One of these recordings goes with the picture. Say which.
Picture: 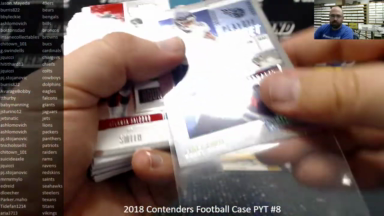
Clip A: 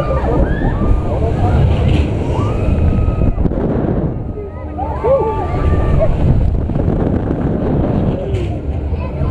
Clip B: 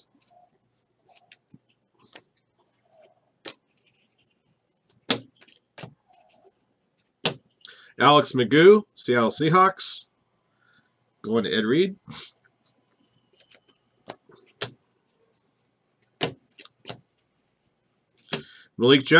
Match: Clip B